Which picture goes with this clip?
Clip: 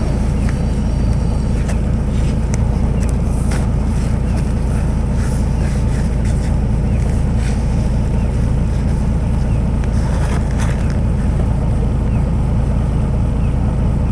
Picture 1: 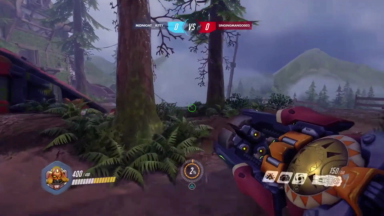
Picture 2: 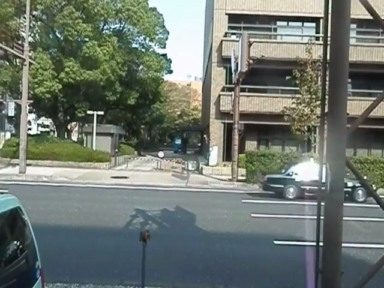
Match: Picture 2